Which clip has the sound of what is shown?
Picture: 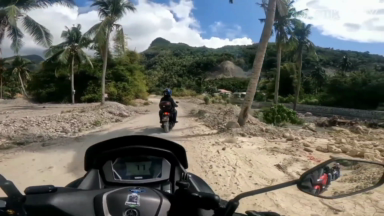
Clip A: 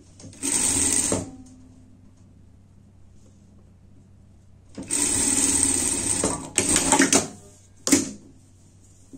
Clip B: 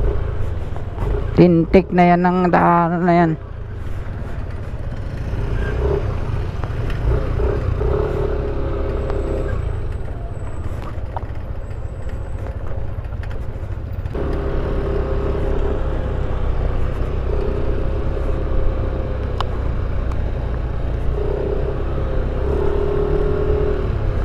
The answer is B